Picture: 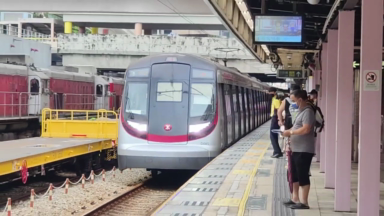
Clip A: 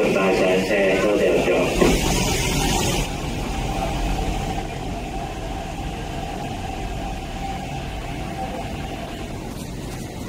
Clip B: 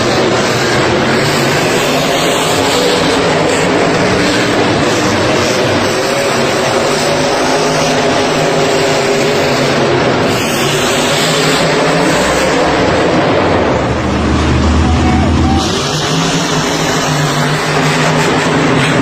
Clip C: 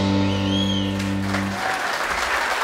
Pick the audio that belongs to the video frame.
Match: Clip A